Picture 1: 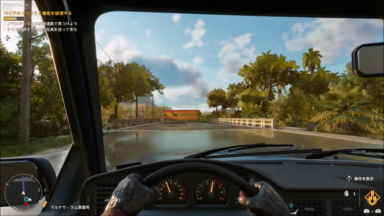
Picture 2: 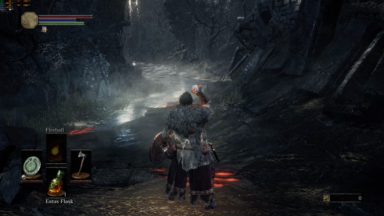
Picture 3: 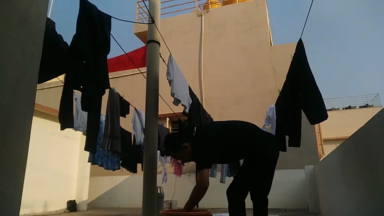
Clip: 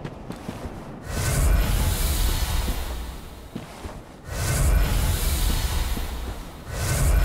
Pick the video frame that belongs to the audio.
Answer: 2